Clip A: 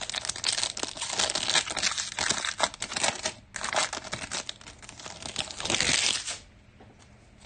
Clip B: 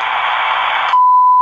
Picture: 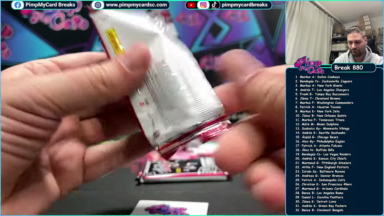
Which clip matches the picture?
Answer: A